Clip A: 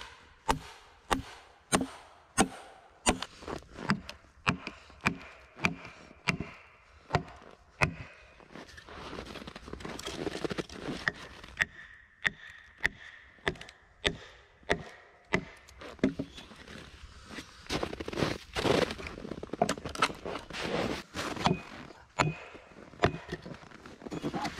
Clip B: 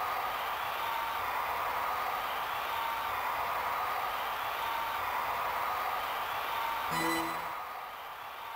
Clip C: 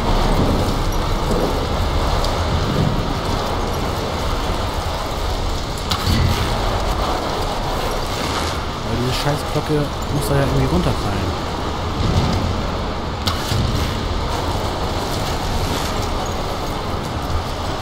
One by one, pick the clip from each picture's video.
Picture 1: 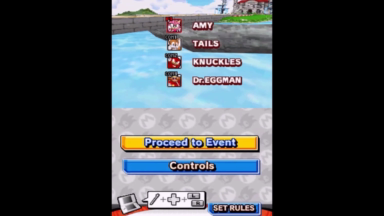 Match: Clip B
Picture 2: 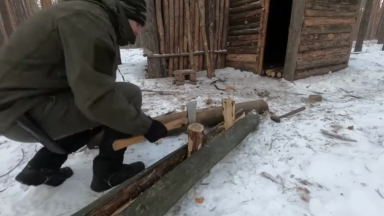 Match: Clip A